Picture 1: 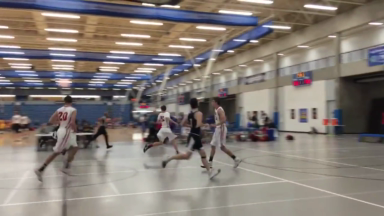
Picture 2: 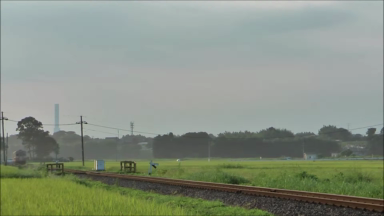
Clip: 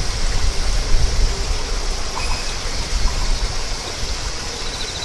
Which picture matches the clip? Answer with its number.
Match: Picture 2